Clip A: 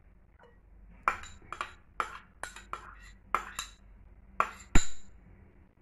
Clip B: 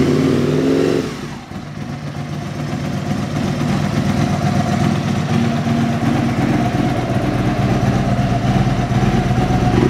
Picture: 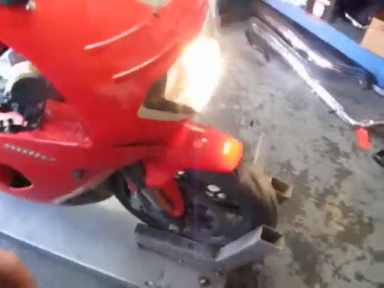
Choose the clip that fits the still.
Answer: B